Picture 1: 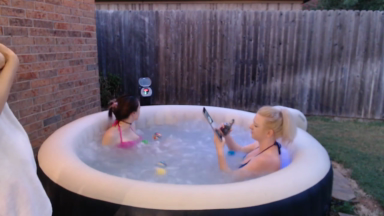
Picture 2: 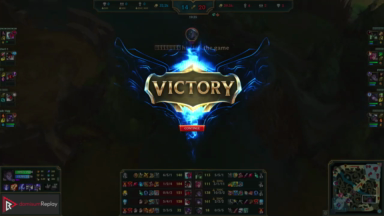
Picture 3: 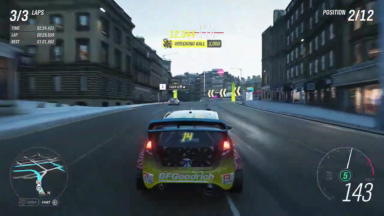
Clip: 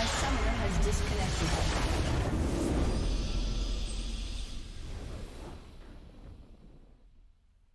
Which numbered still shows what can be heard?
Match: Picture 2